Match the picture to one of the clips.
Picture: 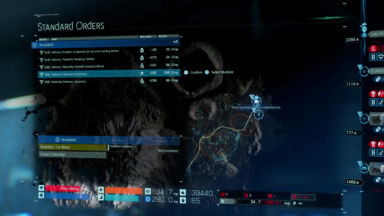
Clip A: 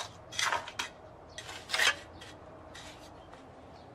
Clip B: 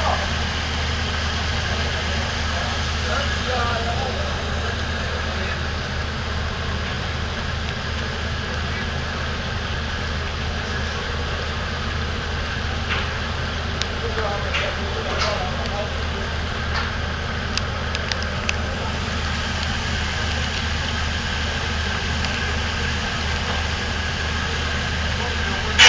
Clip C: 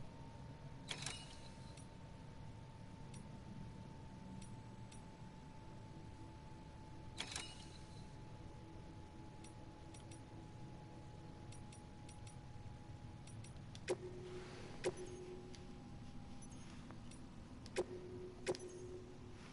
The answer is C